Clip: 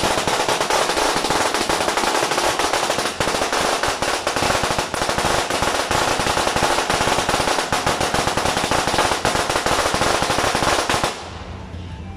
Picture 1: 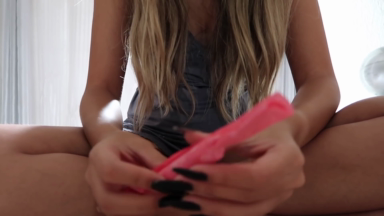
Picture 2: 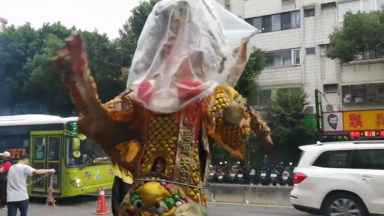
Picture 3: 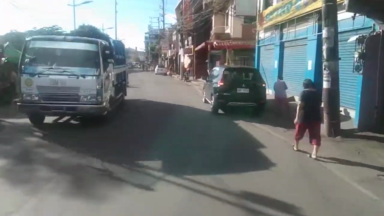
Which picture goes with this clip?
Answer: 2